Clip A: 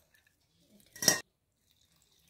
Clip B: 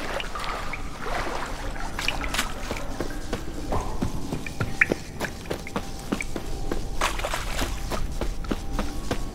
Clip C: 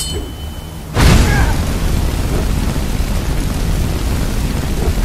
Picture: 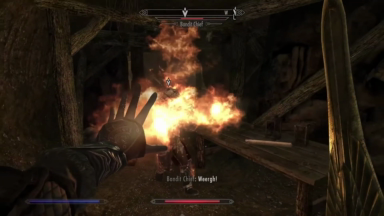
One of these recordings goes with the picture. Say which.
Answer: C